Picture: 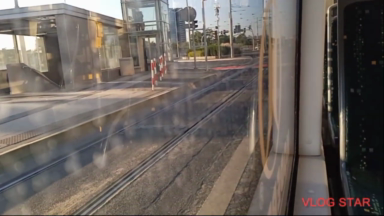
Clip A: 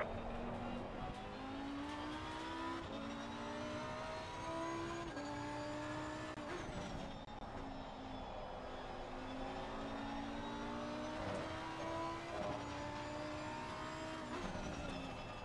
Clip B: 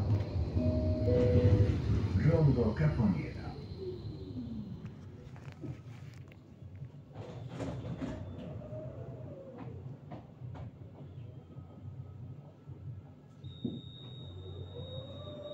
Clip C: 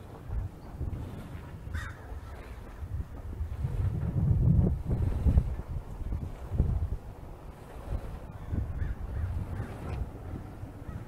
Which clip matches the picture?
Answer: B